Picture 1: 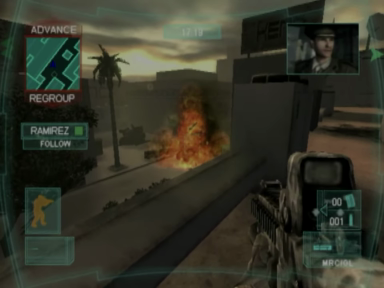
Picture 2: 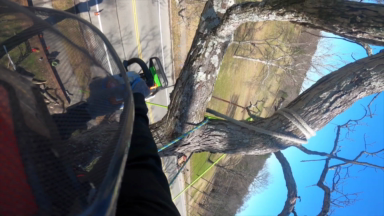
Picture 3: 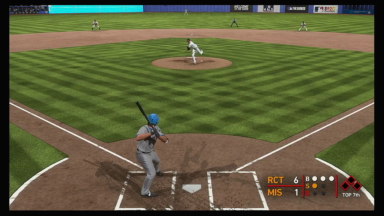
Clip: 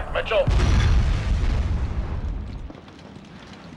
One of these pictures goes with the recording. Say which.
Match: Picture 1